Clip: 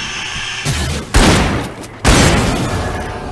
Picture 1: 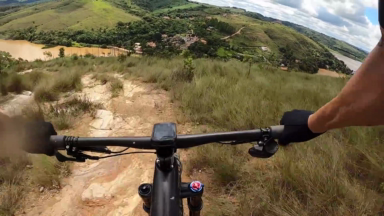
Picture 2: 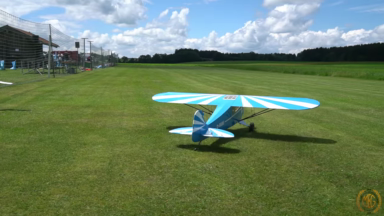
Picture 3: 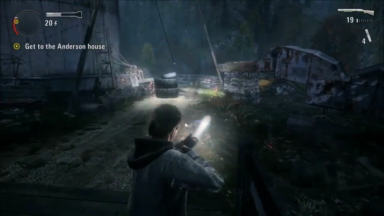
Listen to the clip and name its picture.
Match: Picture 3